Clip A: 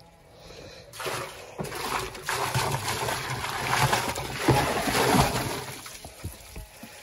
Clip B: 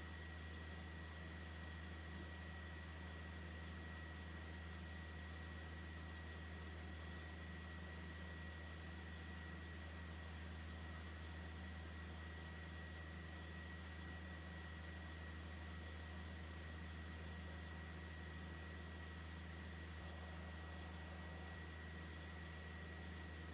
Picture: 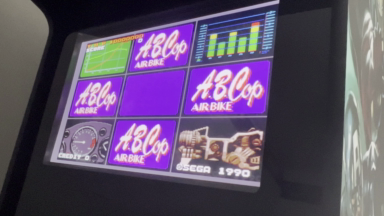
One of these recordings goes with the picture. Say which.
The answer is B